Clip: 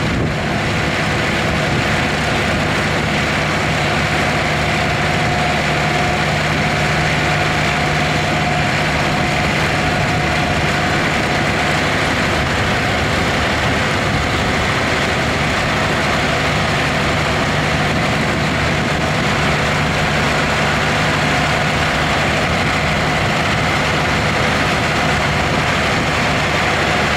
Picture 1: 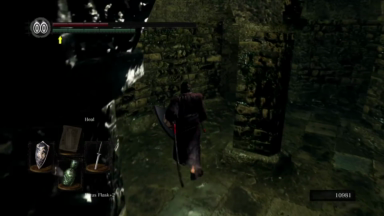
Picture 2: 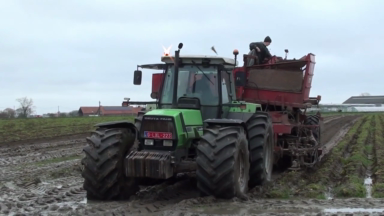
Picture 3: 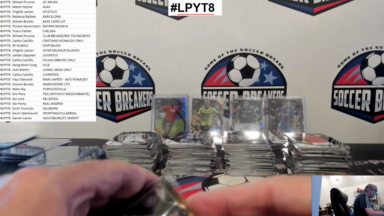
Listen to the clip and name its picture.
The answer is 2